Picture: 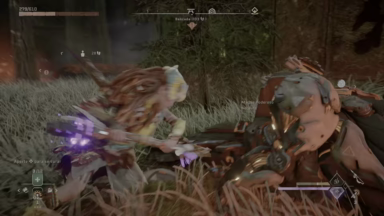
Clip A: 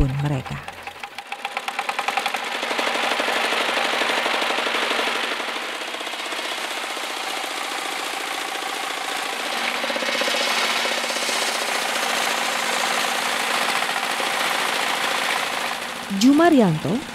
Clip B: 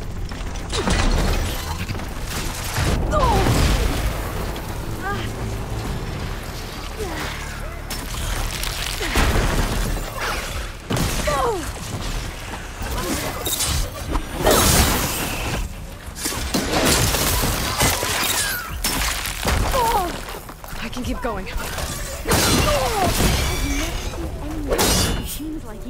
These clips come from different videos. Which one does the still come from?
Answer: B